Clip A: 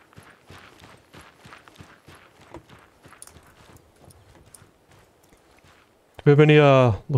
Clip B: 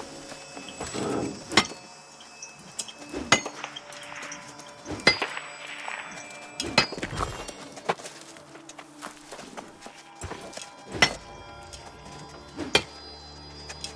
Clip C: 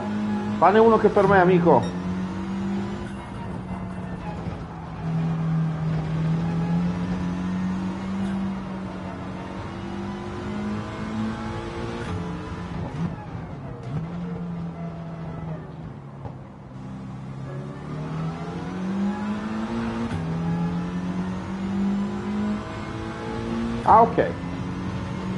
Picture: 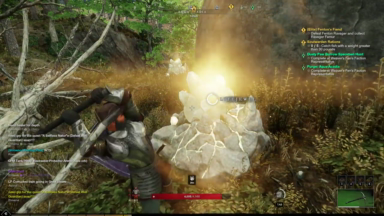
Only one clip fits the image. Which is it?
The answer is B